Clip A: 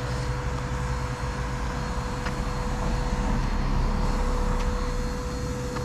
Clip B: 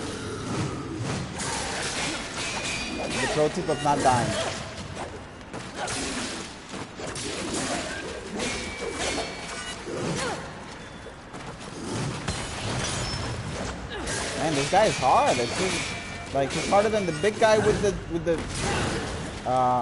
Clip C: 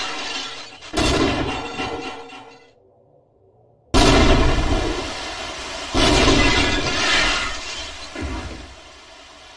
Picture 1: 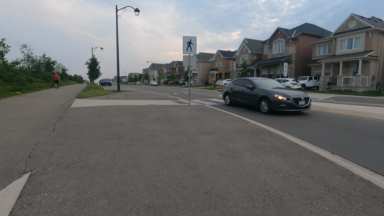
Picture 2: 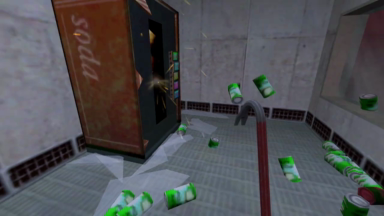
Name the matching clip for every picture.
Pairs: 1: A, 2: C